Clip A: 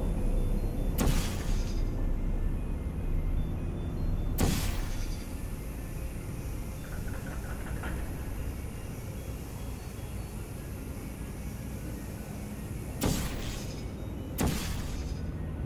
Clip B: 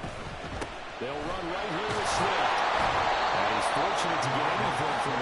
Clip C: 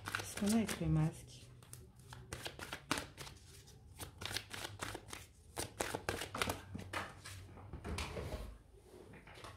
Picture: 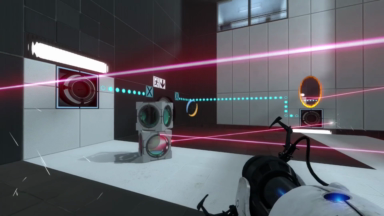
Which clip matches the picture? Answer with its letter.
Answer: A